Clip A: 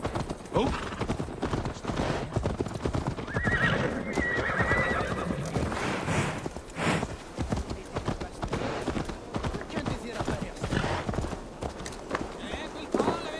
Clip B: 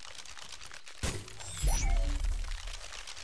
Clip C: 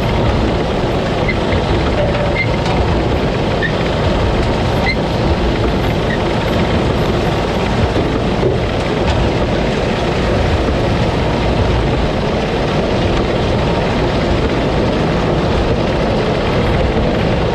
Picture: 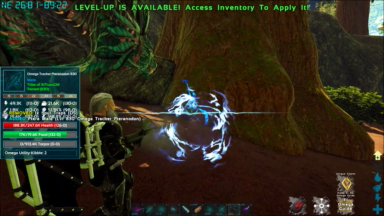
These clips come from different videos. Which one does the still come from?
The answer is B